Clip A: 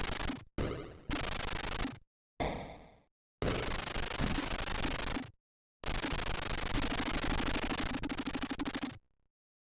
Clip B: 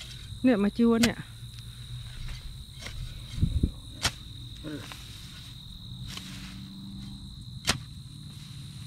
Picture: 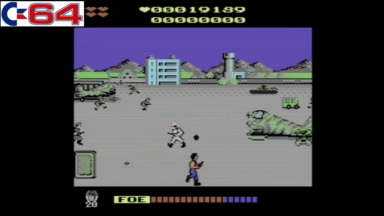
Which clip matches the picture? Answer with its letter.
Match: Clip A